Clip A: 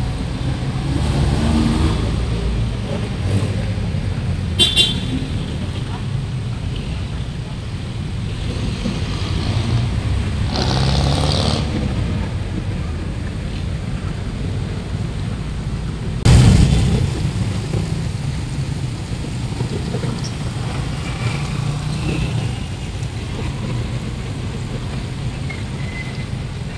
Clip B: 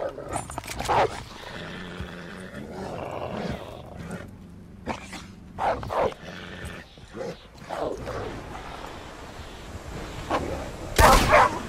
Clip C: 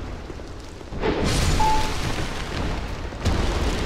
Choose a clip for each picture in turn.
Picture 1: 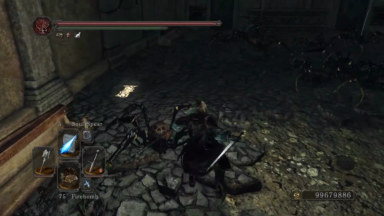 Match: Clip C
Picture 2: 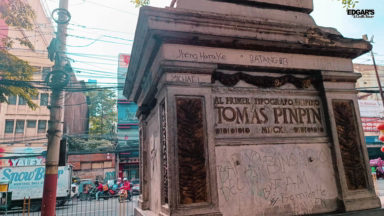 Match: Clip A